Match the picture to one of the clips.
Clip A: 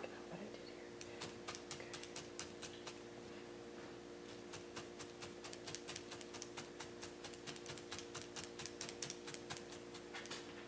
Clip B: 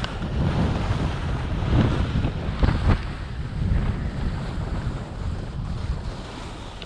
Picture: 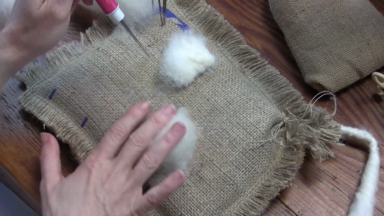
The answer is A